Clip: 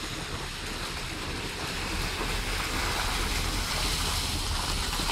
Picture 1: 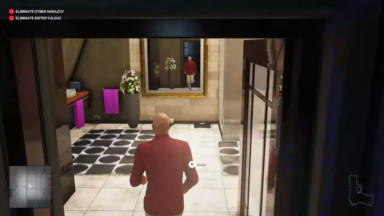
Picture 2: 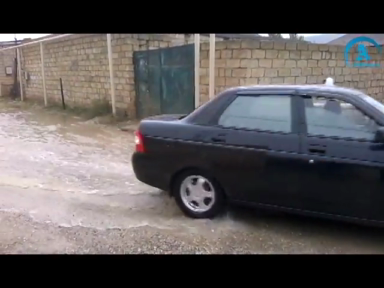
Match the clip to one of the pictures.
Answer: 2